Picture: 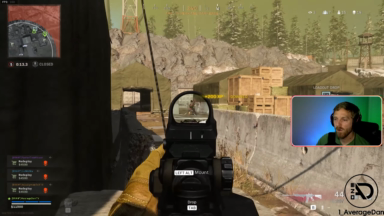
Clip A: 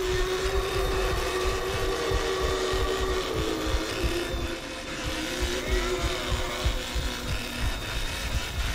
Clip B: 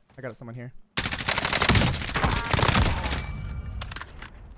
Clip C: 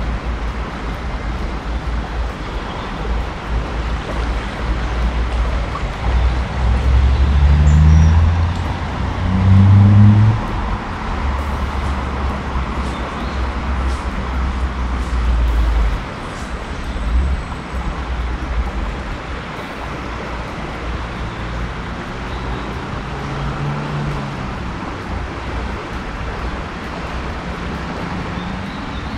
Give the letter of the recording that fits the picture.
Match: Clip B